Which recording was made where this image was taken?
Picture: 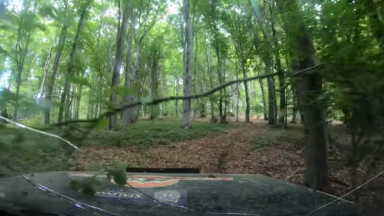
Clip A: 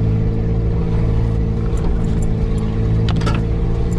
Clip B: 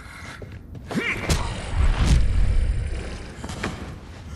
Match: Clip A